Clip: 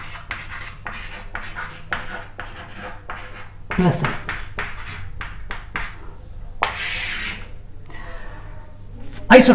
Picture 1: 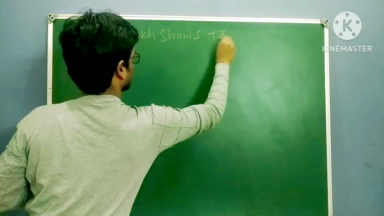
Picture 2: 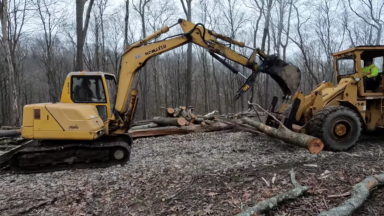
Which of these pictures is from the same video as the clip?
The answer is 1